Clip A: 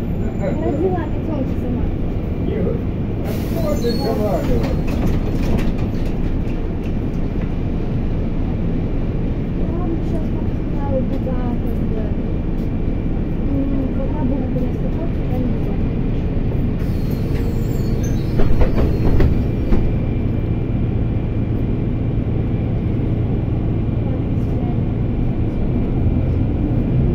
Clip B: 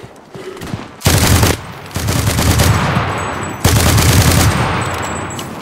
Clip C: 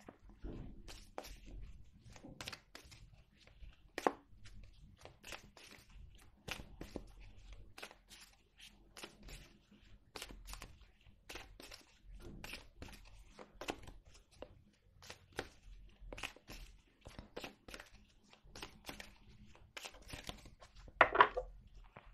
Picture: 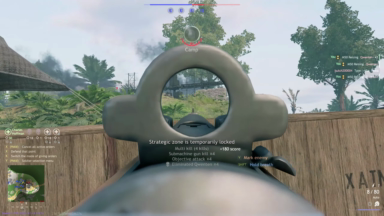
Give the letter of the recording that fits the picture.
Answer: B